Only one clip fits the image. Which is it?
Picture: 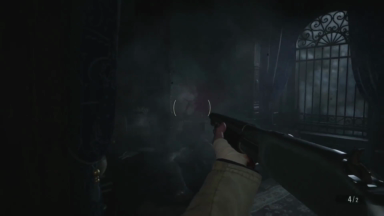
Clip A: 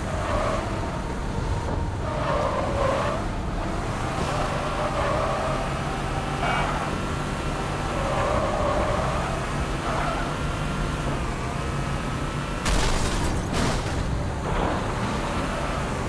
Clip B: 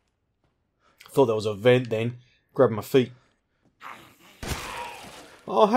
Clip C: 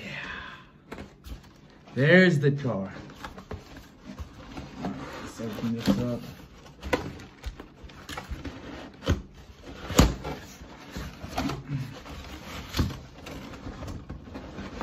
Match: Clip B